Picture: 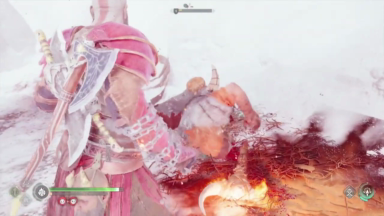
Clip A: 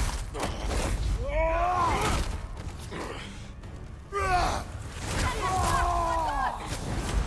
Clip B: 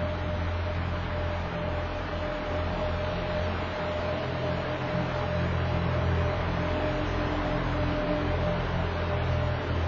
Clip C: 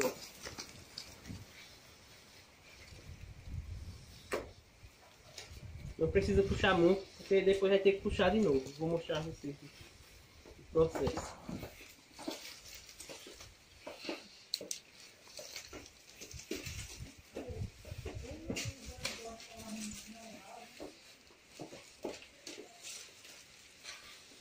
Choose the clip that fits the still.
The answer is A